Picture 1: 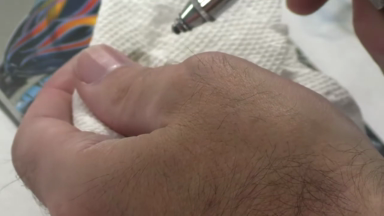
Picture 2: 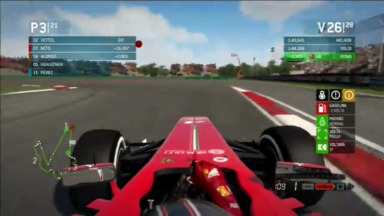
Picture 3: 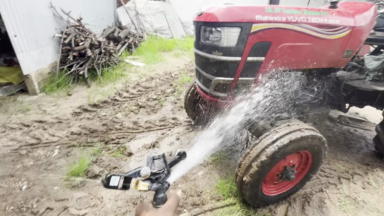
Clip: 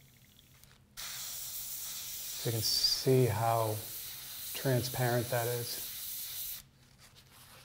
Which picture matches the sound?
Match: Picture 1